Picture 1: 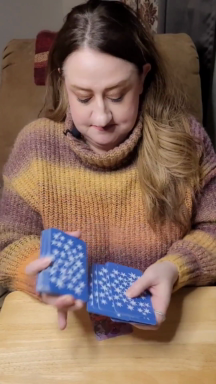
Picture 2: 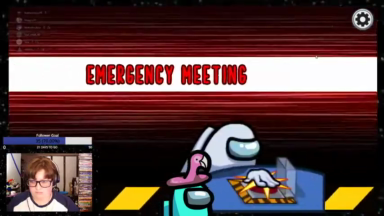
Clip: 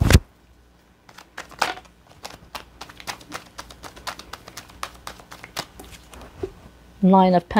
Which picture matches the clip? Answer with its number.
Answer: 1